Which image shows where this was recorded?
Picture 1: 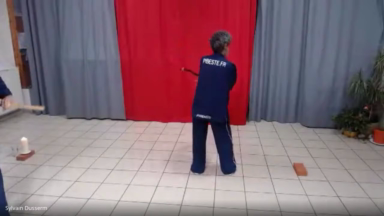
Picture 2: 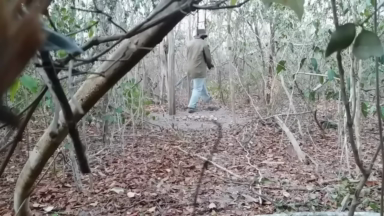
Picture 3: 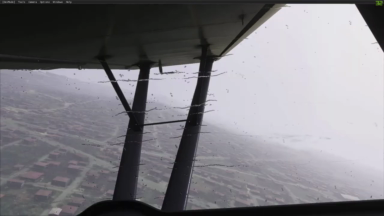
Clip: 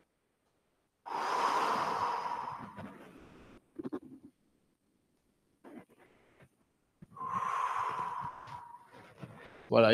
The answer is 1